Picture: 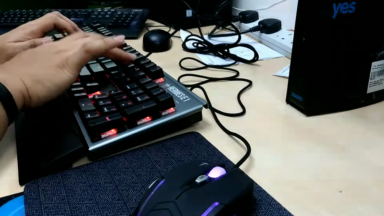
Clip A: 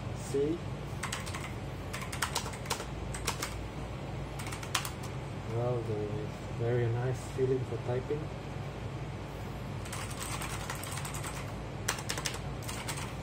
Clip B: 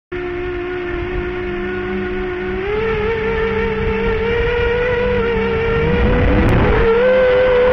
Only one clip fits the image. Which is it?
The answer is A